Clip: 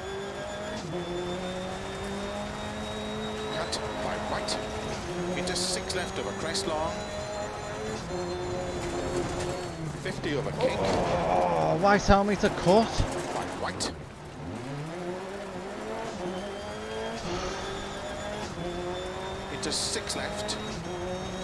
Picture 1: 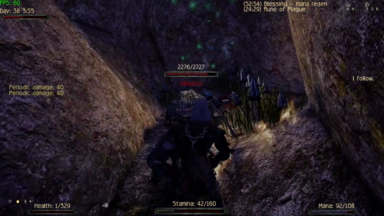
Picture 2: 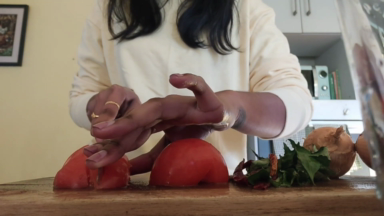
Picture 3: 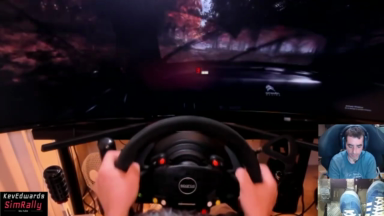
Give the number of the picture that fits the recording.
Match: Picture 3